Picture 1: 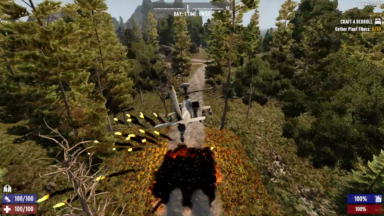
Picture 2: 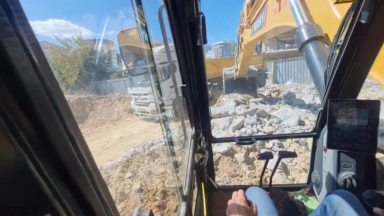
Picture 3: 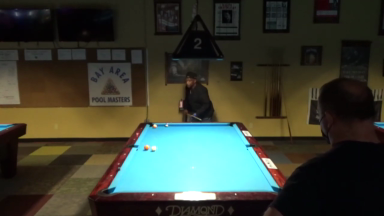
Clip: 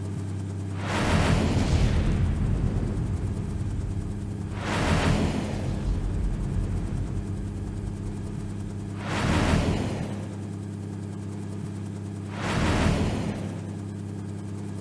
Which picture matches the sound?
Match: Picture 1